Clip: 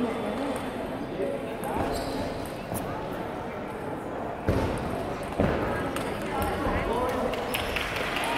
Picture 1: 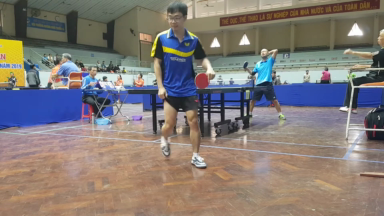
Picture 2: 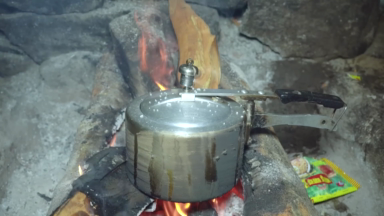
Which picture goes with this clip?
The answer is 1